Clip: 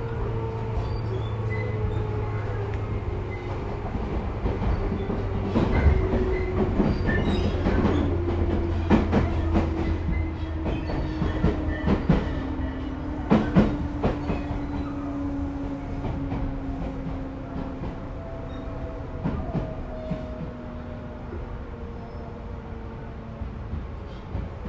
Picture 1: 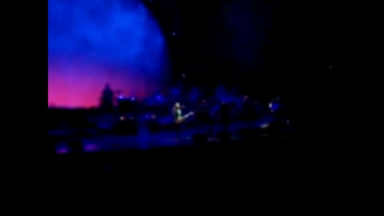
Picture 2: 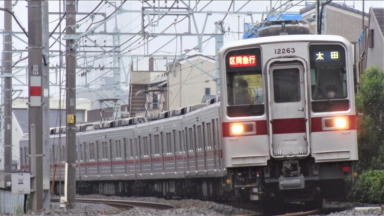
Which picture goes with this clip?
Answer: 2